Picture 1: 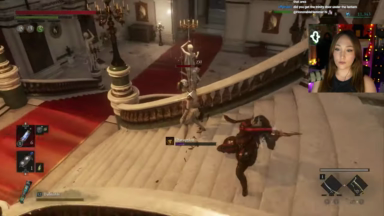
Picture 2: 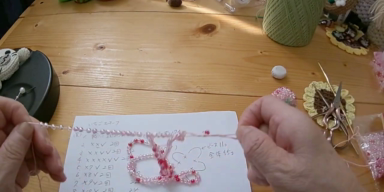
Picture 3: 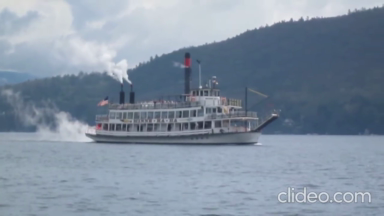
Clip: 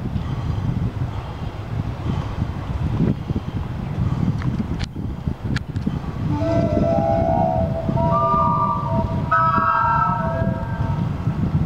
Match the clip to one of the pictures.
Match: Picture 3